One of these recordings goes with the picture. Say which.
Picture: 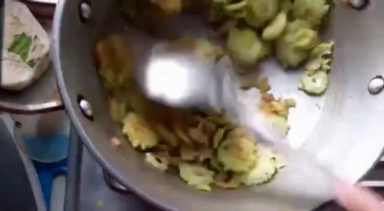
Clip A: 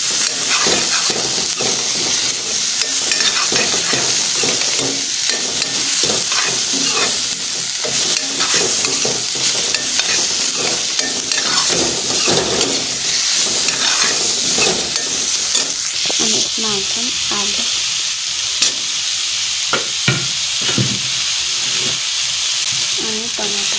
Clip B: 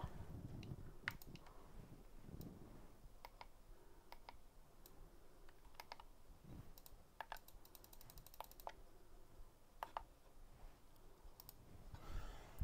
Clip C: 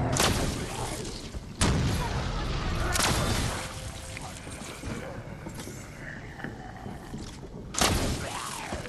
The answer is A